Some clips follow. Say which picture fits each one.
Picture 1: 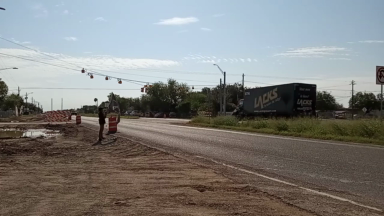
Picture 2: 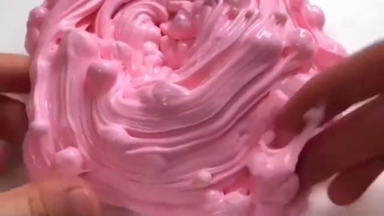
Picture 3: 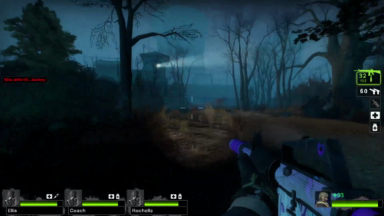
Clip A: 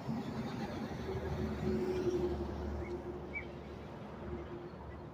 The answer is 1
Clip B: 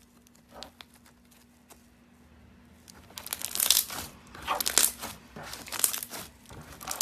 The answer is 2